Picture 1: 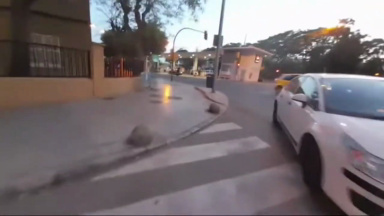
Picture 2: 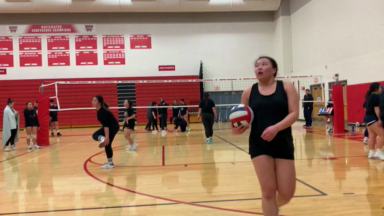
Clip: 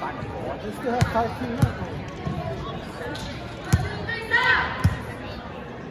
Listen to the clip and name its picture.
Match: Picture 2